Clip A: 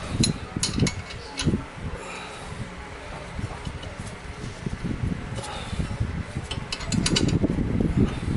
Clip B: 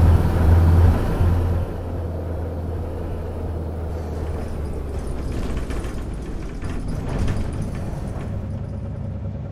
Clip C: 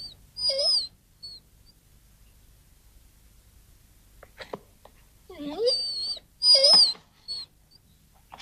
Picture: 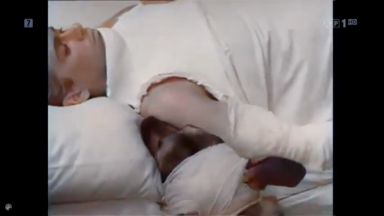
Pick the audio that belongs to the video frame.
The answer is C